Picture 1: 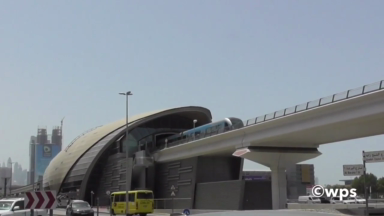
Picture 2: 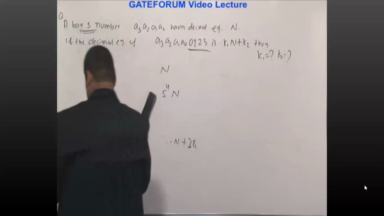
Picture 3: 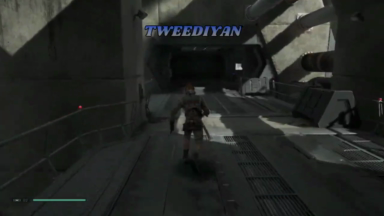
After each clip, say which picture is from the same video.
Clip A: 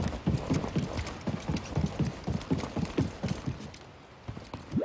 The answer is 3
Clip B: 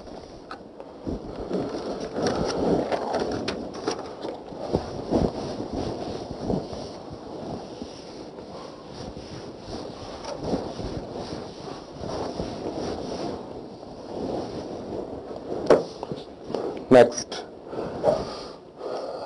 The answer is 2